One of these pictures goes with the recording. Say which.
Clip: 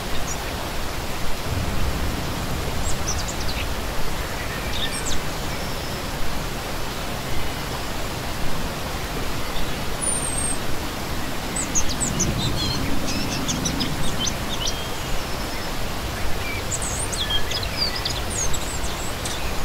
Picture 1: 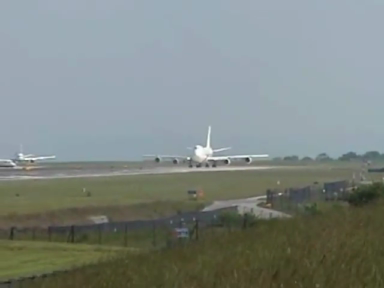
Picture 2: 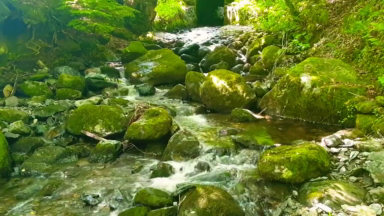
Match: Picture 2